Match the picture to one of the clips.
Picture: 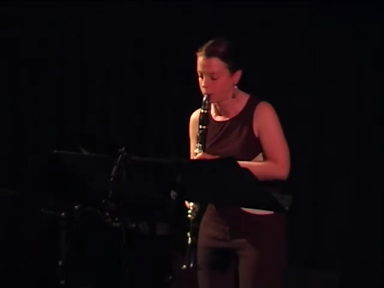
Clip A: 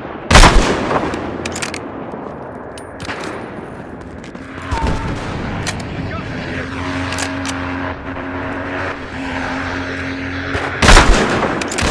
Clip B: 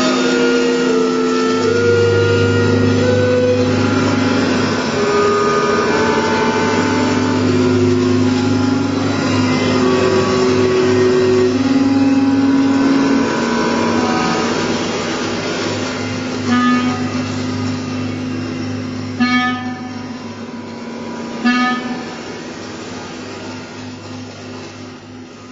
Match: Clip B